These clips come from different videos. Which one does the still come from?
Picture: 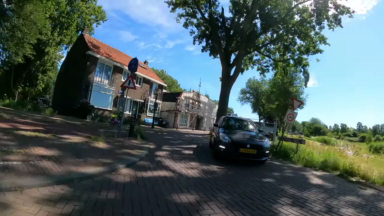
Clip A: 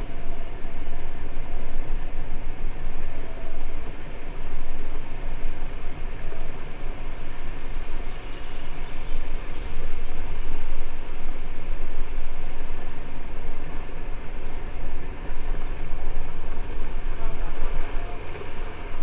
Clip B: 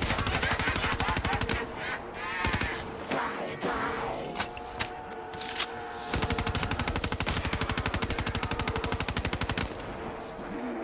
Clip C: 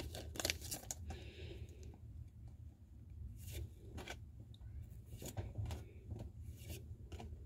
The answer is A